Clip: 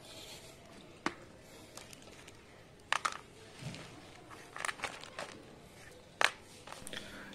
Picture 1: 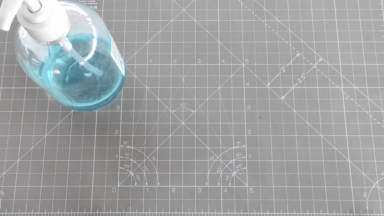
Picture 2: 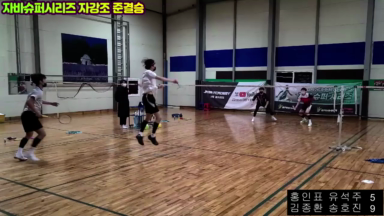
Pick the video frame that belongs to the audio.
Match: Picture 1